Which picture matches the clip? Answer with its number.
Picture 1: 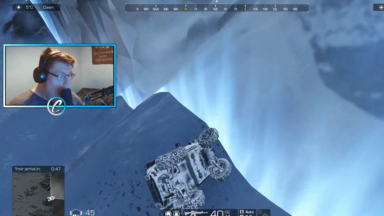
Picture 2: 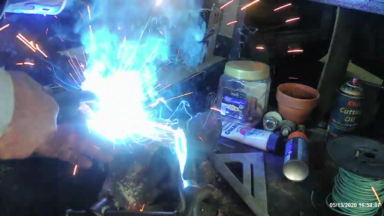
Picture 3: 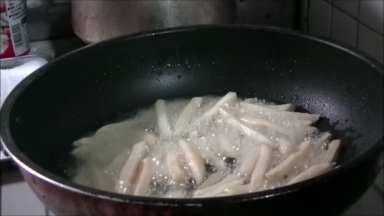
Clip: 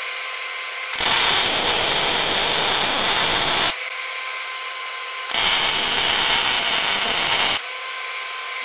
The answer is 2